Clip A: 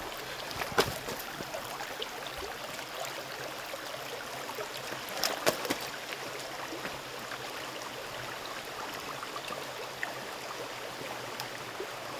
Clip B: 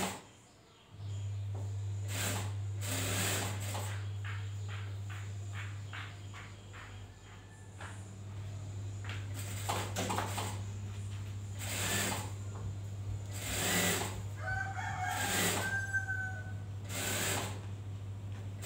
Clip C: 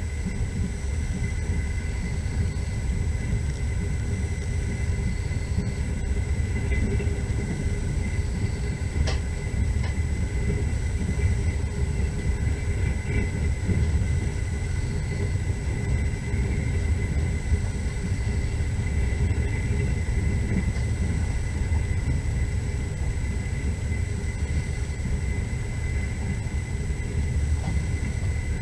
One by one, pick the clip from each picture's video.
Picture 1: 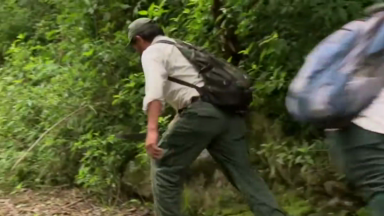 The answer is A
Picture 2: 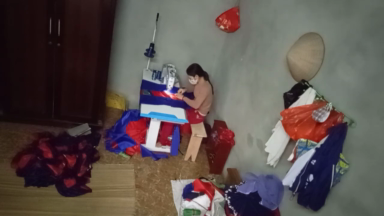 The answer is B